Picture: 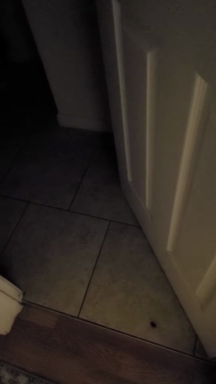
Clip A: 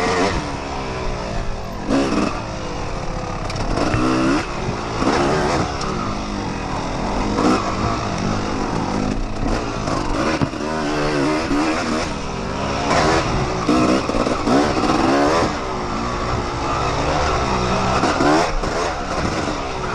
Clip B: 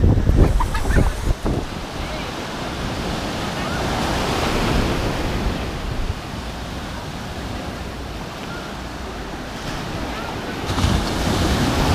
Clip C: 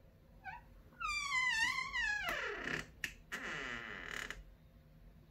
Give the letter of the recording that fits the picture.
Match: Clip C